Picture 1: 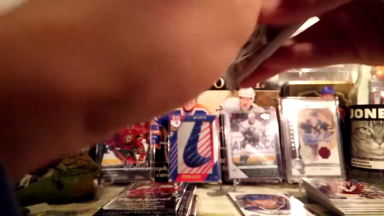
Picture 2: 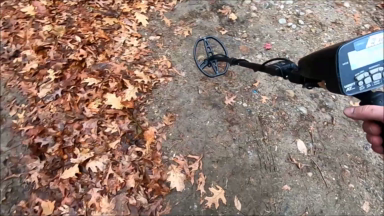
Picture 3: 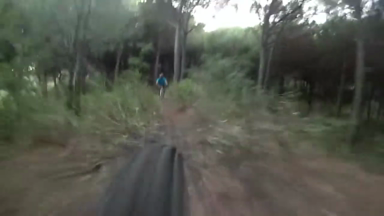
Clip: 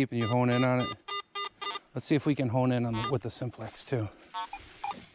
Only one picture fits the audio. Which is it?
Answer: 2